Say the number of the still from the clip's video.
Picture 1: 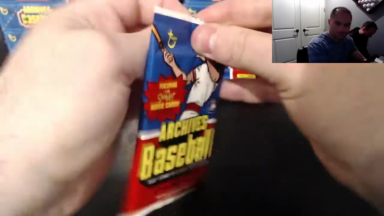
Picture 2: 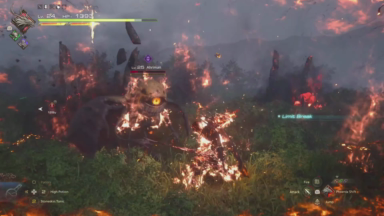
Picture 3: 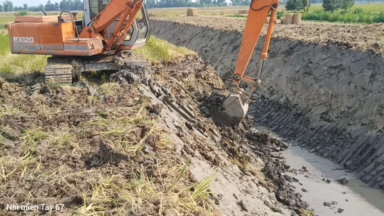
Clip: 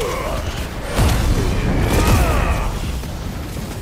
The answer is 2